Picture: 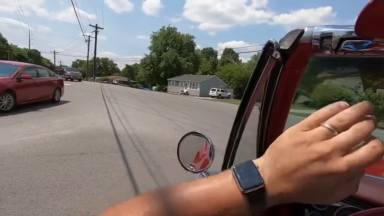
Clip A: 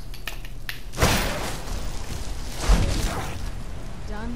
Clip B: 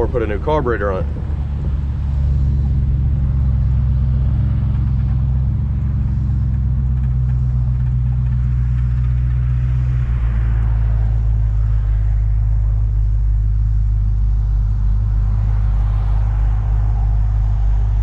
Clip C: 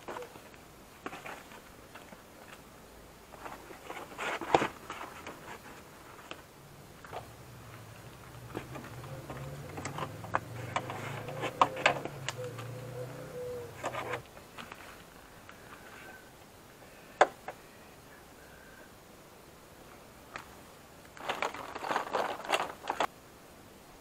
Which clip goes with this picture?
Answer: B